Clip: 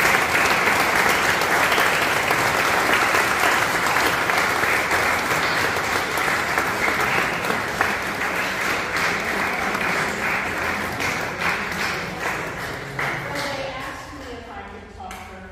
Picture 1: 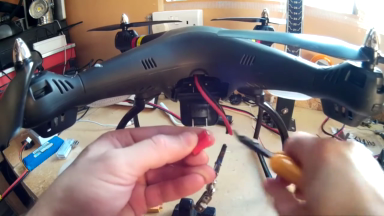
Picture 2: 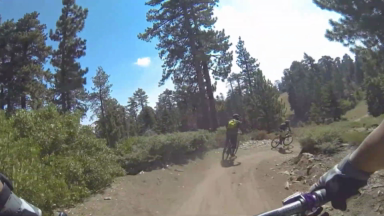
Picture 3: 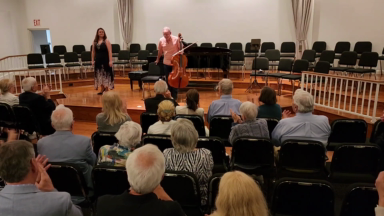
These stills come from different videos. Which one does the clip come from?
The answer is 3